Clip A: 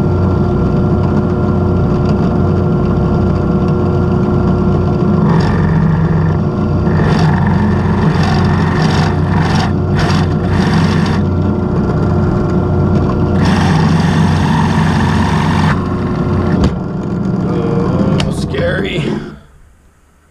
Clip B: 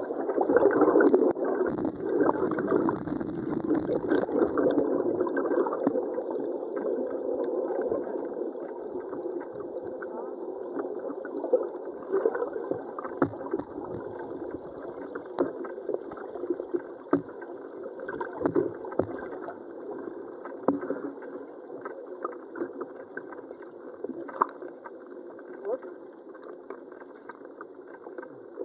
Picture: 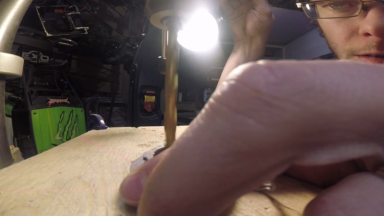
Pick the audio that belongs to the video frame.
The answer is A